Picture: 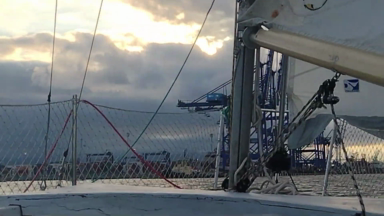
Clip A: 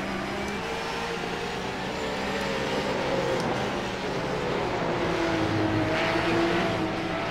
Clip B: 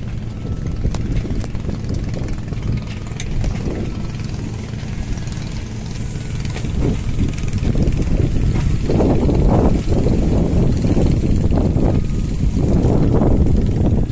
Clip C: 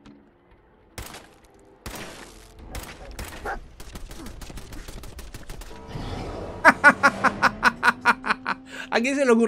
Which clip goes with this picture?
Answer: B